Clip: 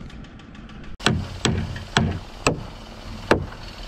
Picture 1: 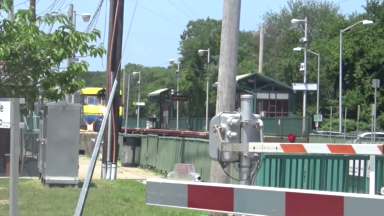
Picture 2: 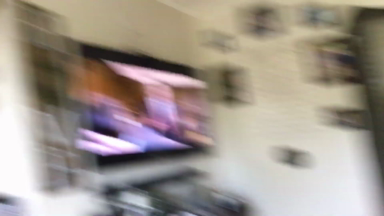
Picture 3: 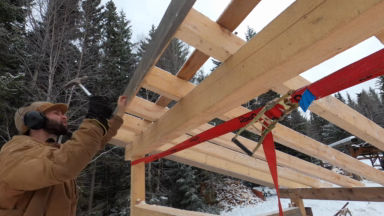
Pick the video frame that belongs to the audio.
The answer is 3